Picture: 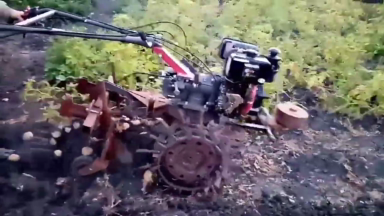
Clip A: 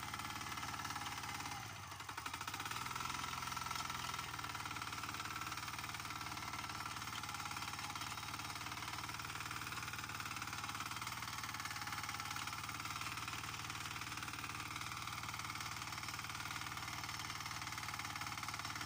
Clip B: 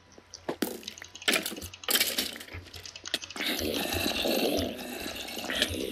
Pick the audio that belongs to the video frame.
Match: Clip A